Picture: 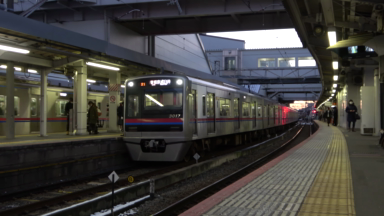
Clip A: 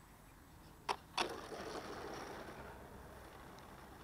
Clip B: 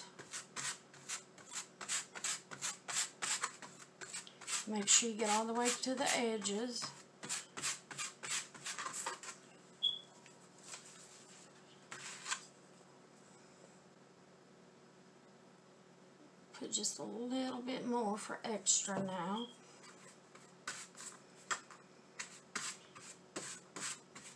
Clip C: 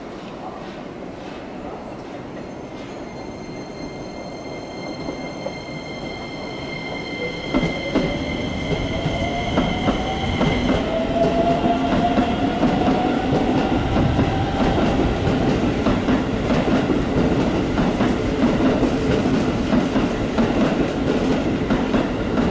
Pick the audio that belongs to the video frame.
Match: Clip C